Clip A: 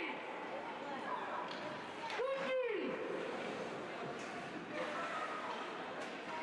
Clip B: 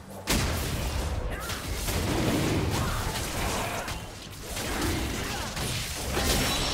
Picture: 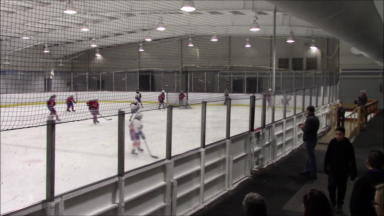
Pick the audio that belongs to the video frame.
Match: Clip A